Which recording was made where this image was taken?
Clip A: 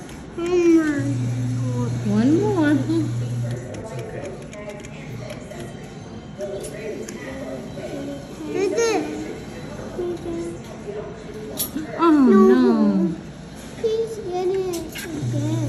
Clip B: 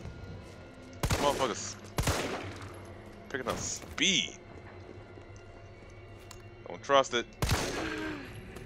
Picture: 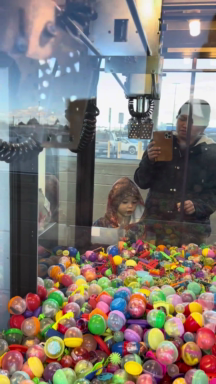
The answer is A